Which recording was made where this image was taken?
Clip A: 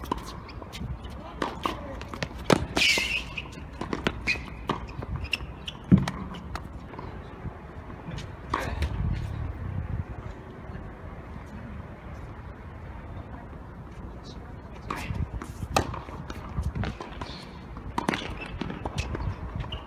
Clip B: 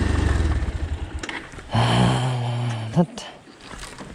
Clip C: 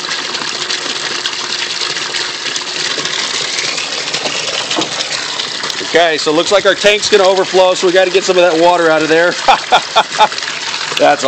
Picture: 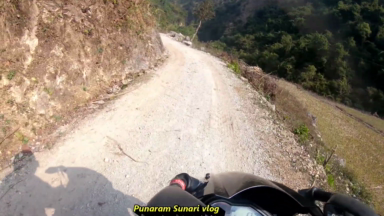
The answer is B